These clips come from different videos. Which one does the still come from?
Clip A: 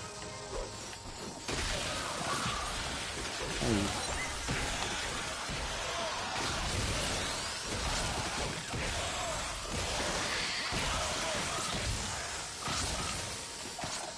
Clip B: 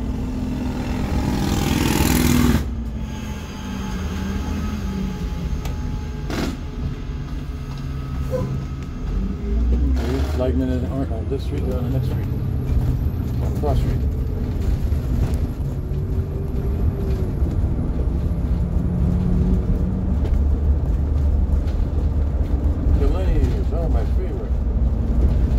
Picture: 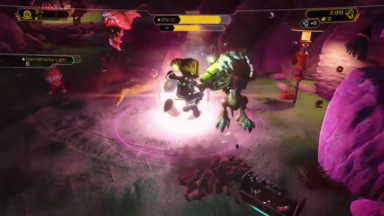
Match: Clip A